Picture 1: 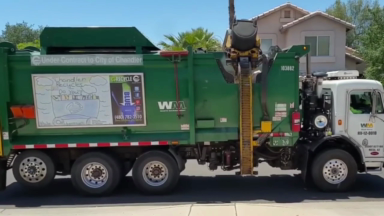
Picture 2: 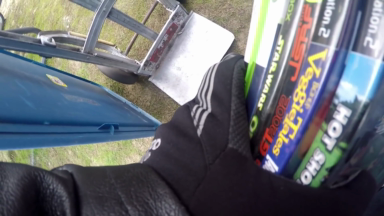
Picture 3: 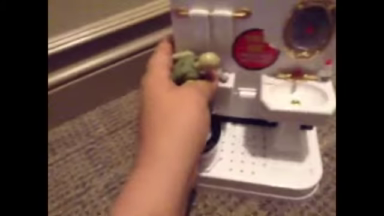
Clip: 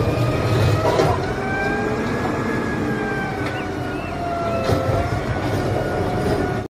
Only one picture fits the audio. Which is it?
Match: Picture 1